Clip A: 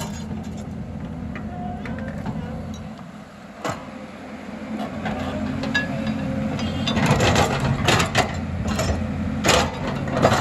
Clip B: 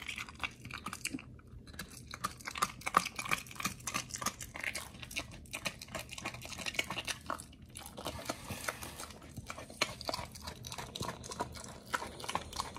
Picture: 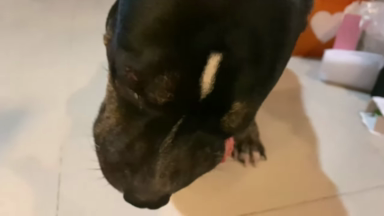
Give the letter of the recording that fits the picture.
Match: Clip B